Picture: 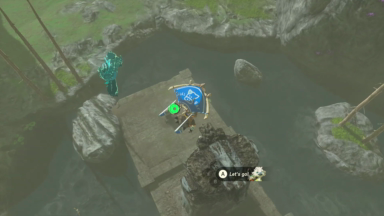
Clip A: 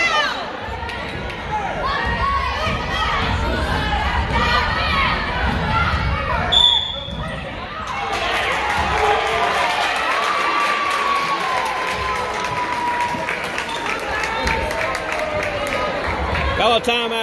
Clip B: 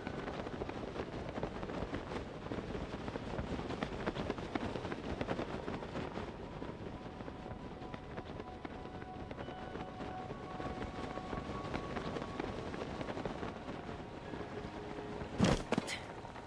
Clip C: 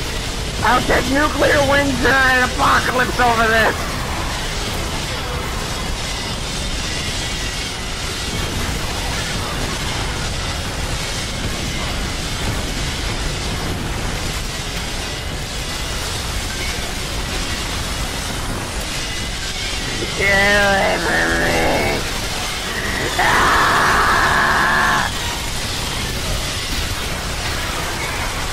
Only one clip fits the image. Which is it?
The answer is B